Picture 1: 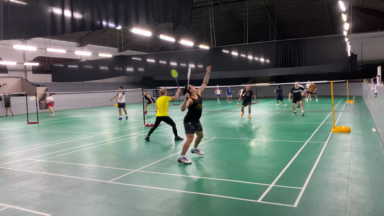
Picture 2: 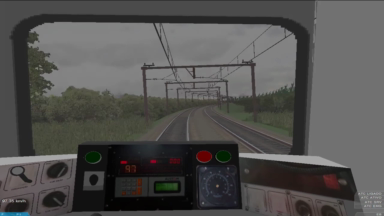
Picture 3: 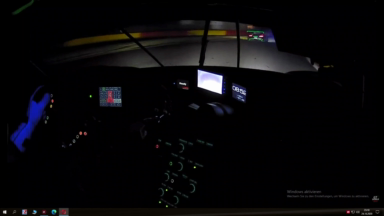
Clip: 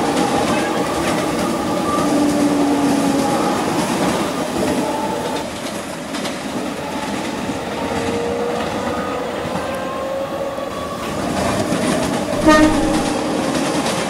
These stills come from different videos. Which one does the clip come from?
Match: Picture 2